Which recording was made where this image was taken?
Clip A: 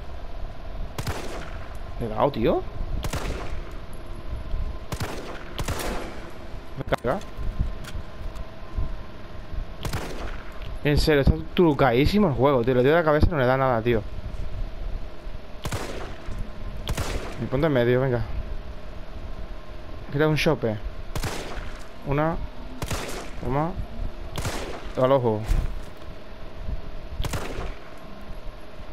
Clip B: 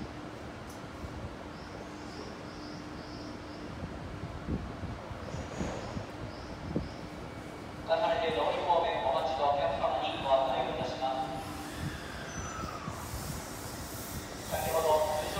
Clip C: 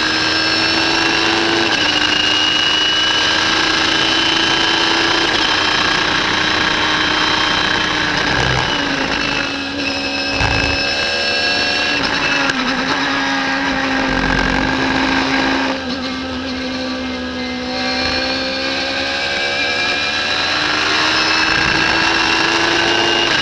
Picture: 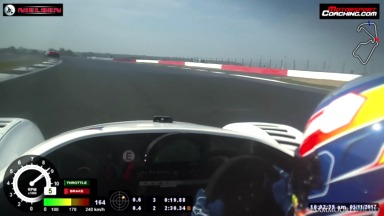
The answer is C